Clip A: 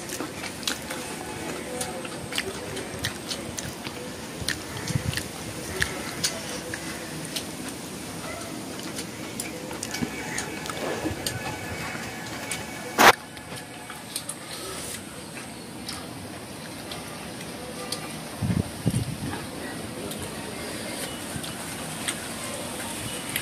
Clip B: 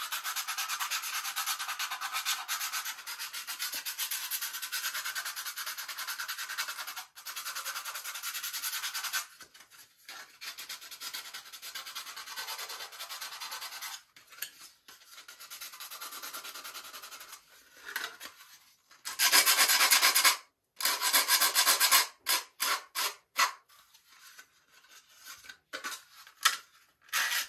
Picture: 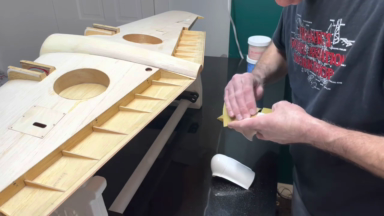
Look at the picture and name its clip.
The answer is B